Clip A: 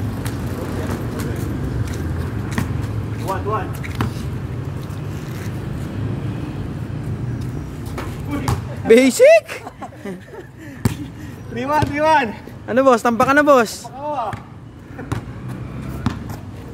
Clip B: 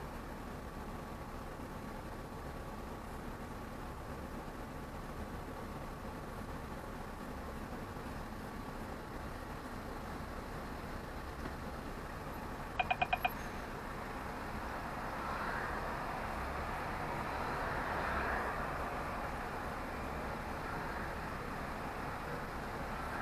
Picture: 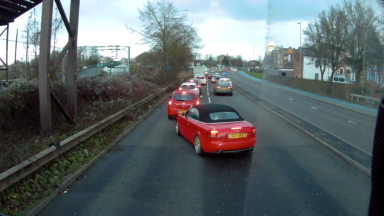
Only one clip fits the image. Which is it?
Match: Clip B